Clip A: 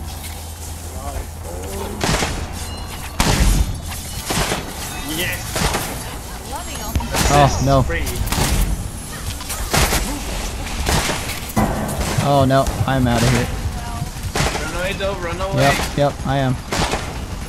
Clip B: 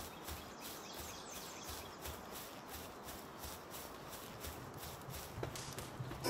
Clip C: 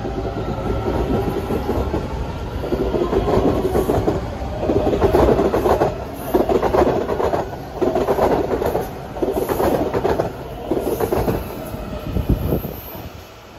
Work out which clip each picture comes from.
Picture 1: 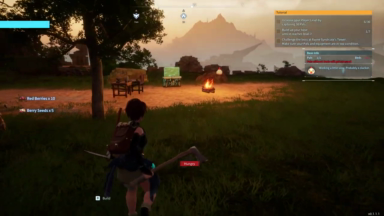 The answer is B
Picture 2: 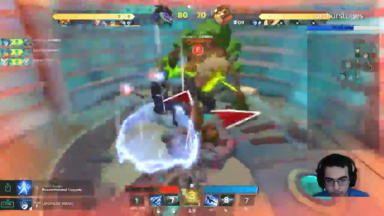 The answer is A